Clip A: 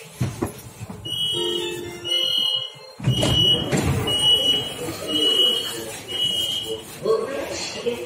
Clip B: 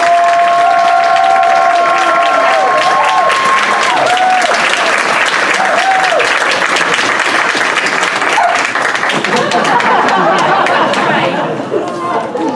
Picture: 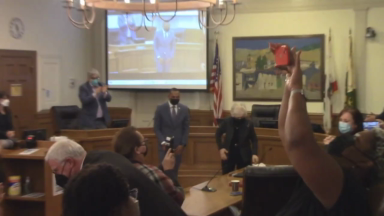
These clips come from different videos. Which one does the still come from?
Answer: B